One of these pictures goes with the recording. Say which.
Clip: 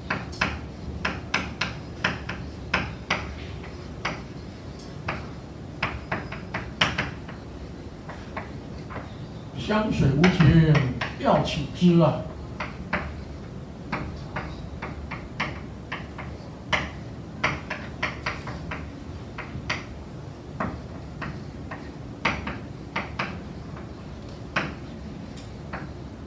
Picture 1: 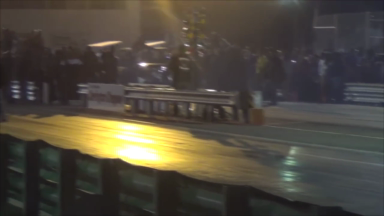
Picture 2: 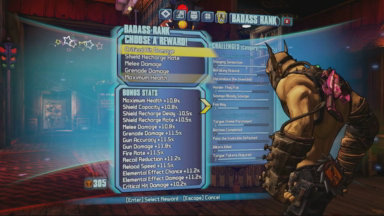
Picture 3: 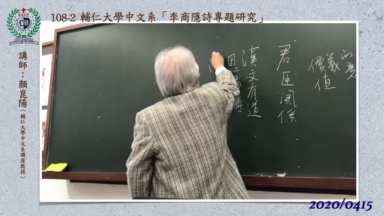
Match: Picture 3